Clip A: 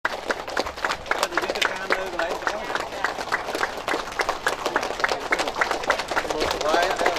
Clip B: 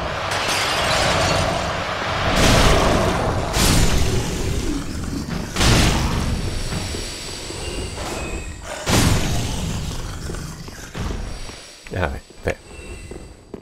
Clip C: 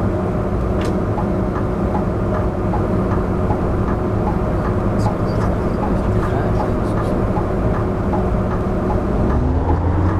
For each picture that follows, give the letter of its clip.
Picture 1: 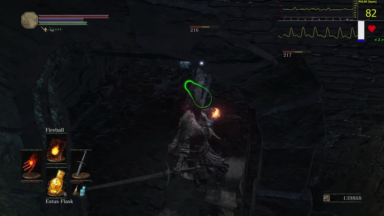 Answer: B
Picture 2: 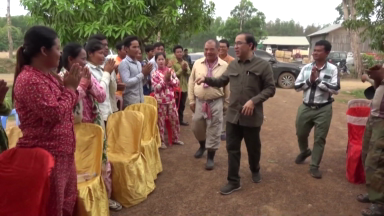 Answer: A